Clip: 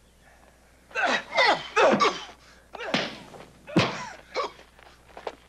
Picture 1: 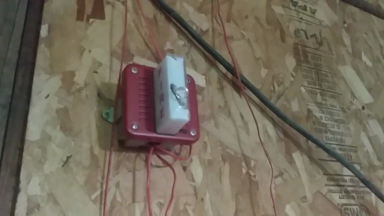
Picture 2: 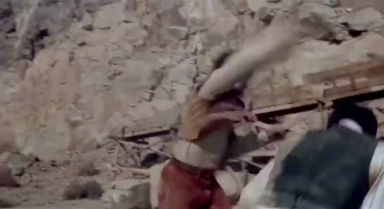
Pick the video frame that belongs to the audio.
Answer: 2